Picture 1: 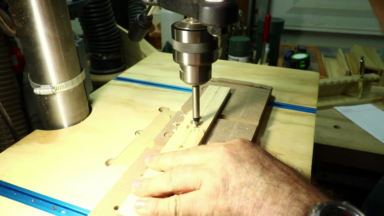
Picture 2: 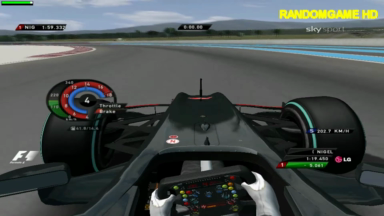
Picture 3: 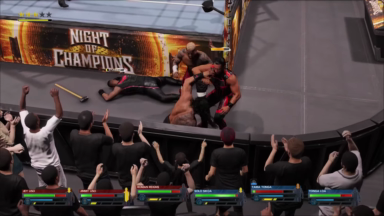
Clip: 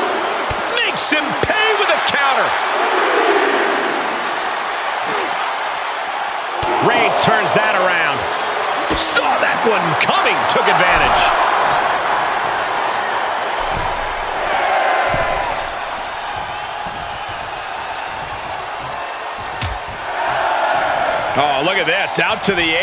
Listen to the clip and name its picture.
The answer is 3